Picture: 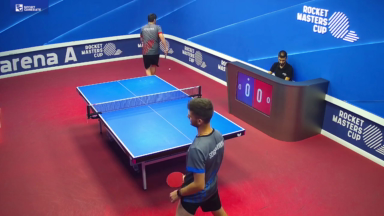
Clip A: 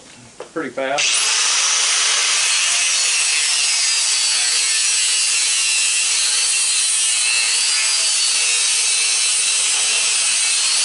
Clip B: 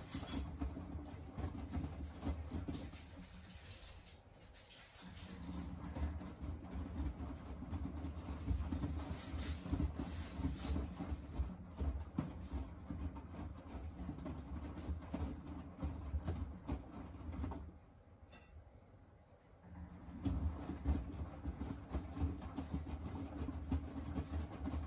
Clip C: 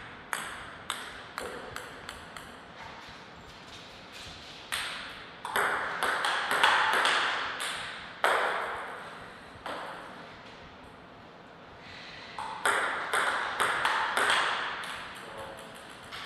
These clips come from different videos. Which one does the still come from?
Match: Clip C